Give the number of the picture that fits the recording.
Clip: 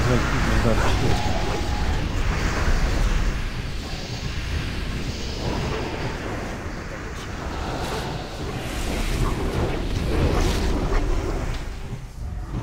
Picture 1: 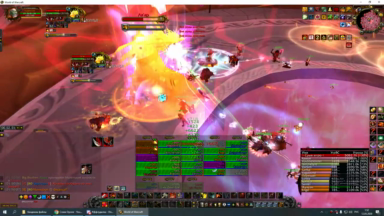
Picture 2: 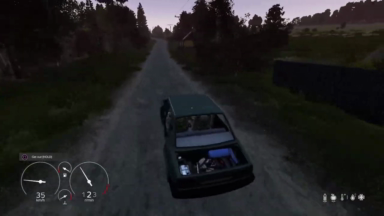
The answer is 1